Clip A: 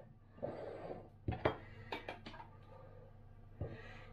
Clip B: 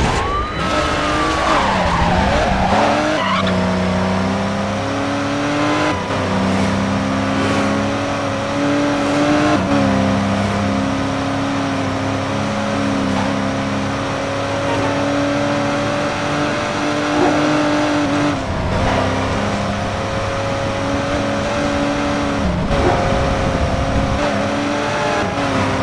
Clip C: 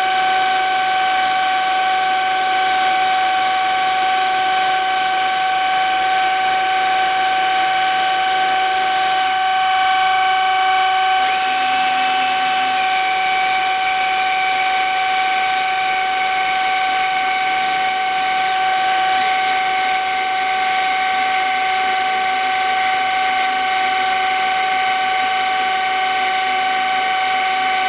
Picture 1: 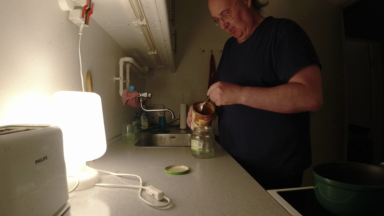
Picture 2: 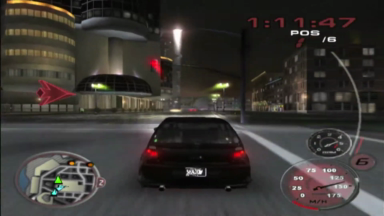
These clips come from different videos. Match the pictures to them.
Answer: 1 A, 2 B